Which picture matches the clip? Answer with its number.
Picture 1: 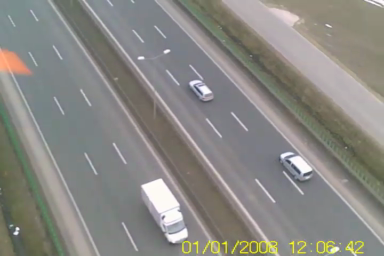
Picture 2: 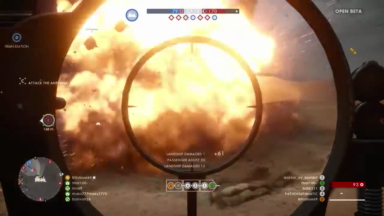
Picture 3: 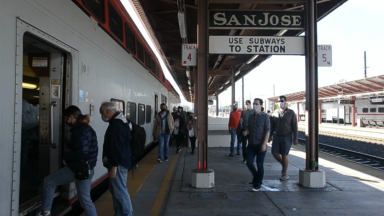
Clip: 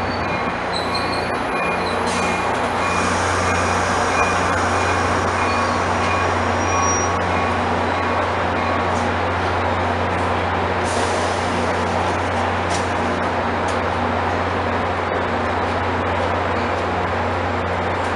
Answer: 3